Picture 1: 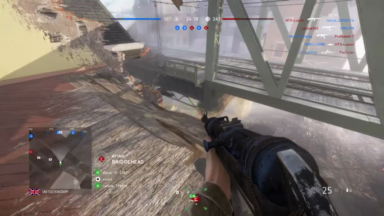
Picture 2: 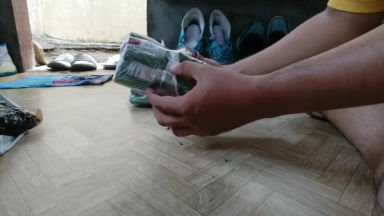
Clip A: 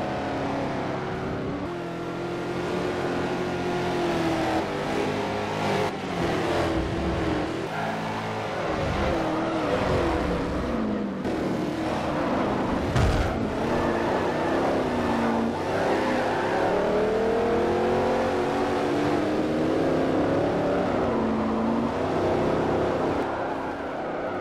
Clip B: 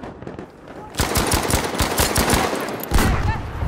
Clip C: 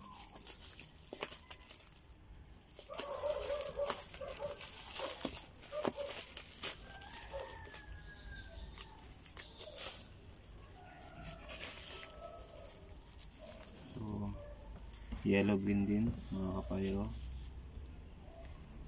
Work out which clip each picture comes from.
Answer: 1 B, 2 C